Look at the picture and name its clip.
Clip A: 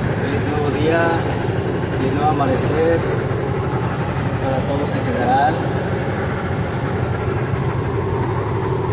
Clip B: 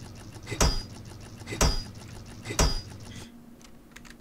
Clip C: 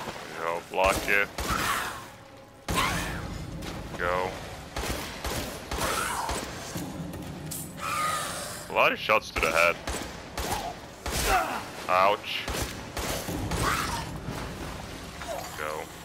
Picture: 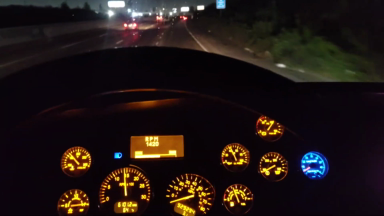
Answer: A